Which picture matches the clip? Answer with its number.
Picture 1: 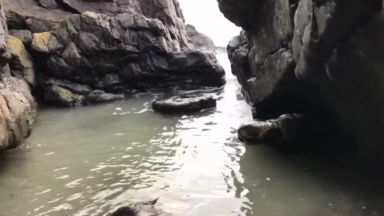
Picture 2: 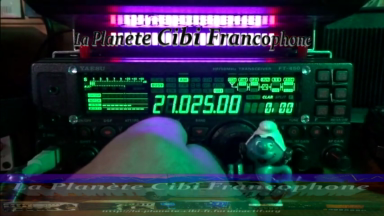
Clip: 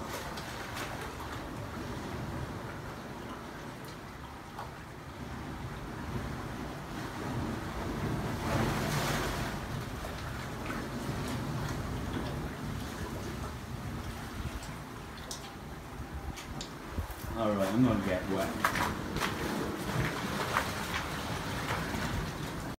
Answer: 1